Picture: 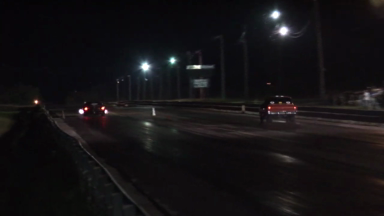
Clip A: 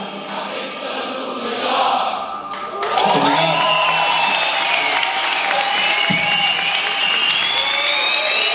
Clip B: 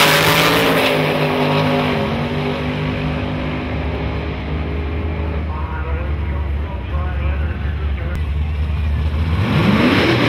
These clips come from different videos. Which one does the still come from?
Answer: B